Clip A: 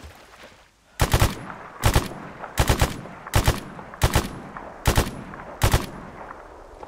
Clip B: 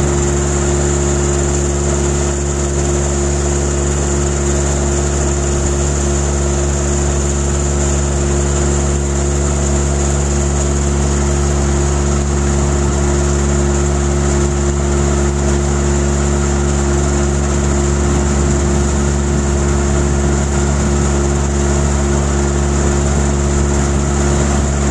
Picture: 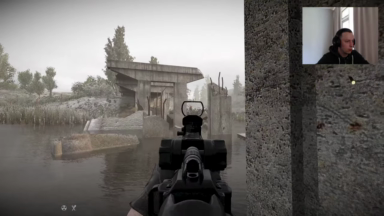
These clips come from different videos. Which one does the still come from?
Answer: A